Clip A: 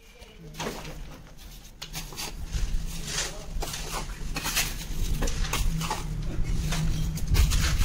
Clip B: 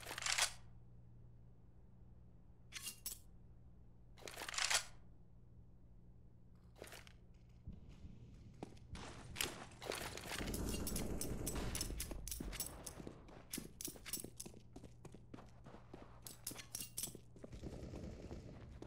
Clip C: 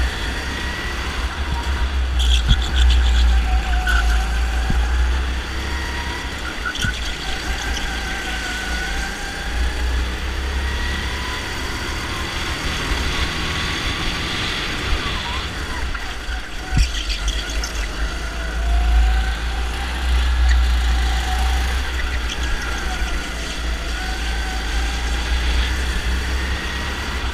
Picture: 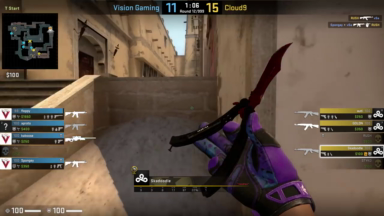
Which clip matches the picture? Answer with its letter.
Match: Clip B